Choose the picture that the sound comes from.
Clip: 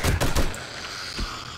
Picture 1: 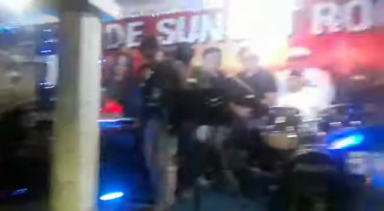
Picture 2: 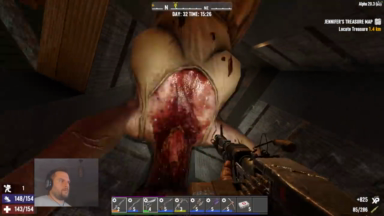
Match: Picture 2